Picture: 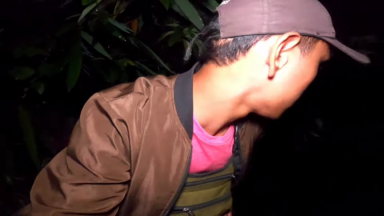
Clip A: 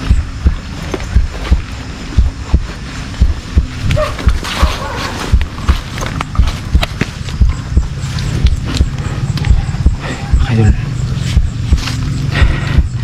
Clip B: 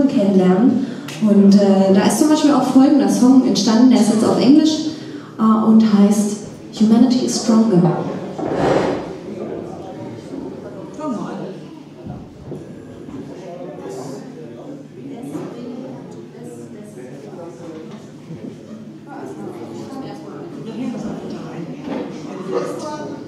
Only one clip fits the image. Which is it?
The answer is A